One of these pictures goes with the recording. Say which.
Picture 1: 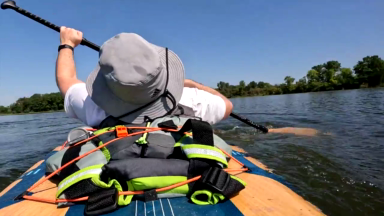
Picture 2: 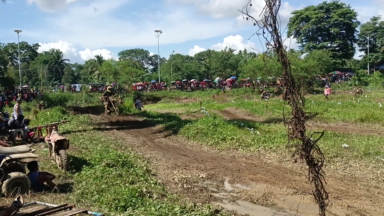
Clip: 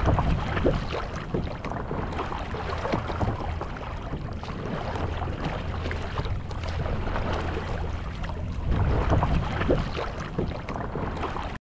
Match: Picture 1